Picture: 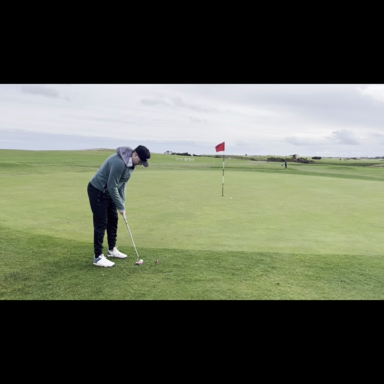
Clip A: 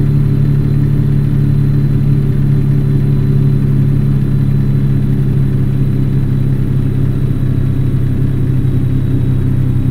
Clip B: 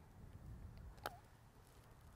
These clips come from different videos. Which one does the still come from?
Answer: B